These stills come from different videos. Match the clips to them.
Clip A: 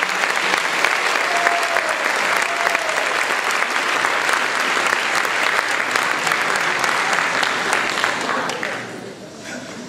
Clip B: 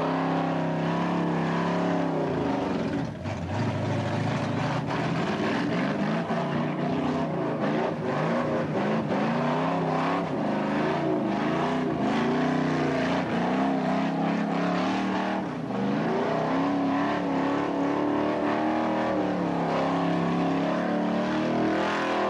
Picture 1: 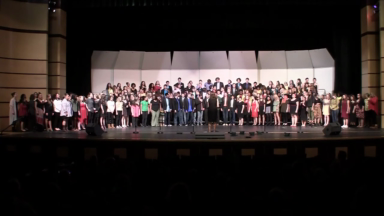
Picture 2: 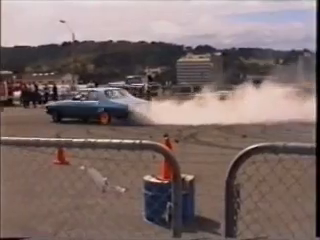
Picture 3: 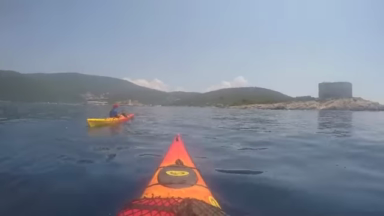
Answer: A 1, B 2